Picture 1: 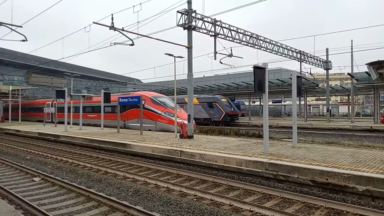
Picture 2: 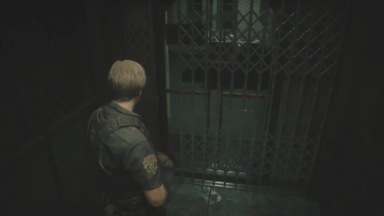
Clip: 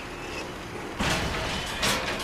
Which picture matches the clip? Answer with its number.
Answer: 2